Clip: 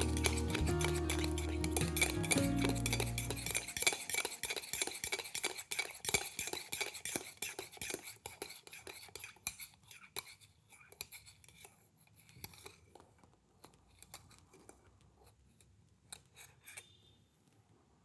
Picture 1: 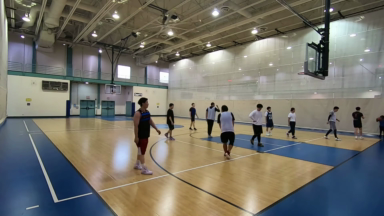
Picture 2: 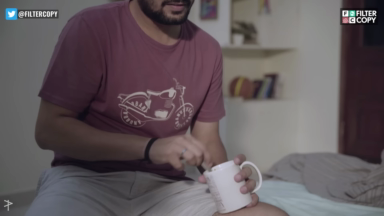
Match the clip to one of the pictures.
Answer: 2